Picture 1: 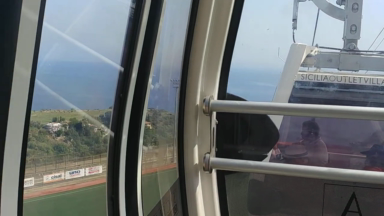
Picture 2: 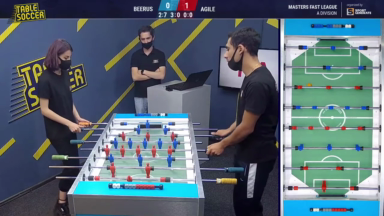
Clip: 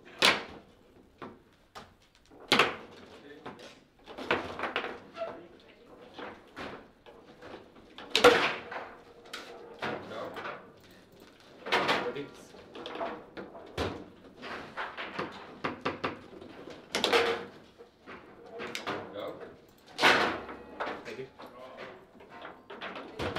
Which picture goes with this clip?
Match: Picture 2